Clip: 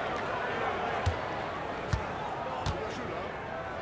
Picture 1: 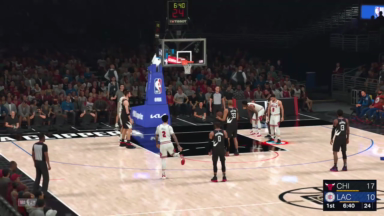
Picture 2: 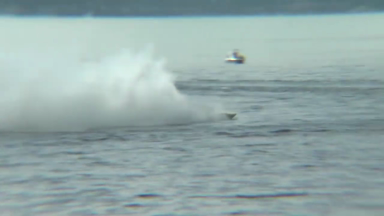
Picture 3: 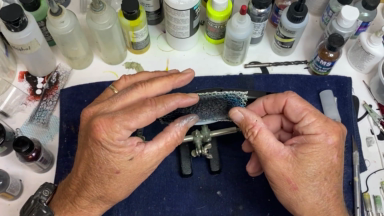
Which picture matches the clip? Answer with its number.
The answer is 1